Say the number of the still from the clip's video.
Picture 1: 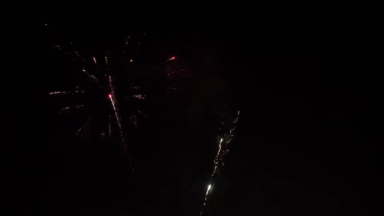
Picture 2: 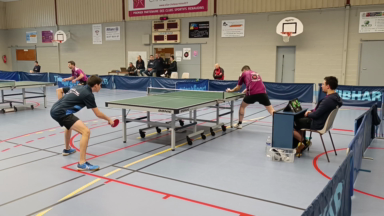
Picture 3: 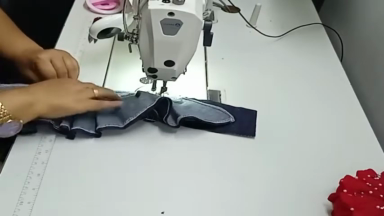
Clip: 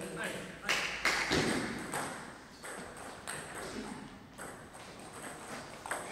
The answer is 2